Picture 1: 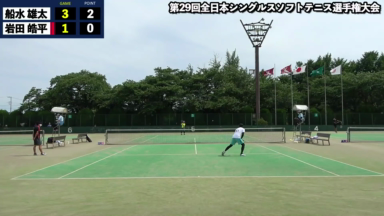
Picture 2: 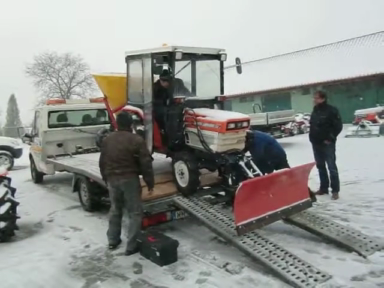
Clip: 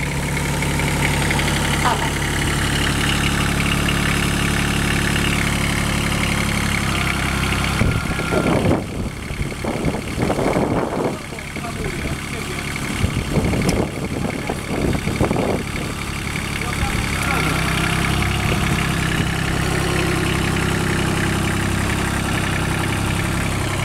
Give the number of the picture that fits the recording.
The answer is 2